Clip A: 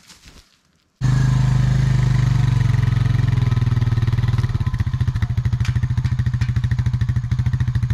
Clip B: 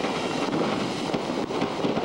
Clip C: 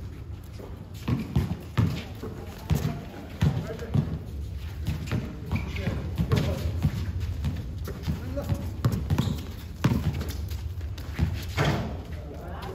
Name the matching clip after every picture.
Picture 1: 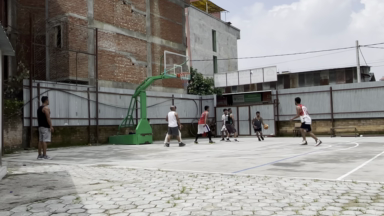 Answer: C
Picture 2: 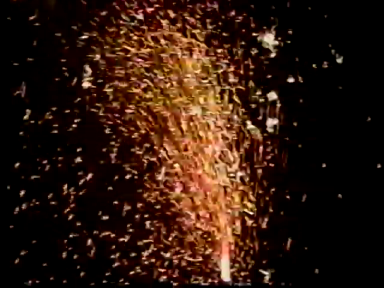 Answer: B